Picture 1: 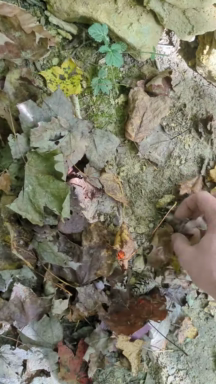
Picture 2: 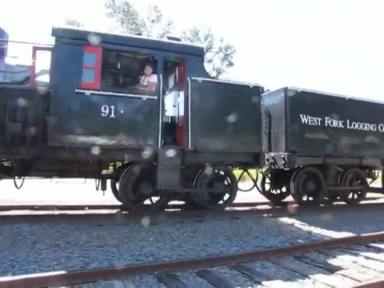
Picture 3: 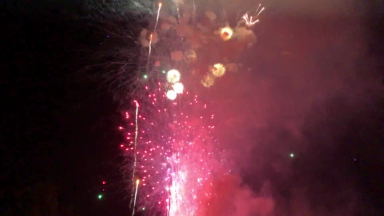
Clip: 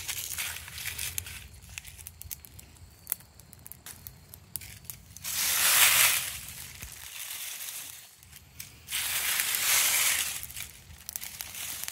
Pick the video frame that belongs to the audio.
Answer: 1